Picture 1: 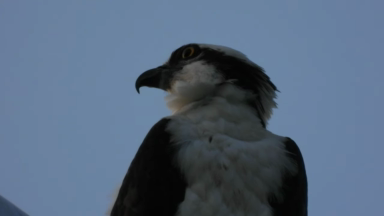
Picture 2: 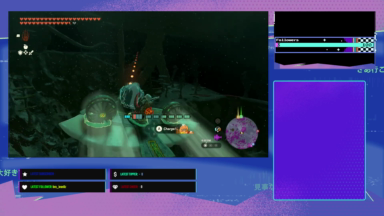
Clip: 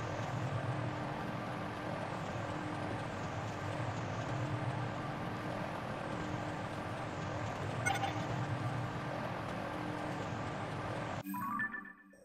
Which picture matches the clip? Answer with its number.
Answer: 2